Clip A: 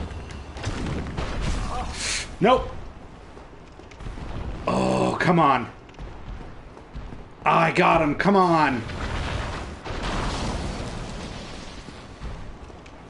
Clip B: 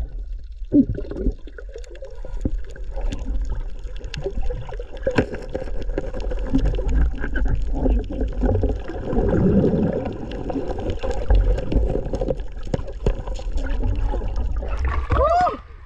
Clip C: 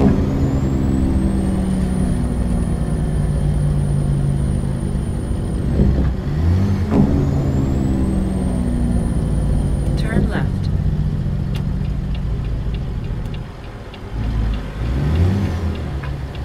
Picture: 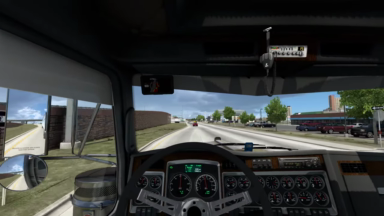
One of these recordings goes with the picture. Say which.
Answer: C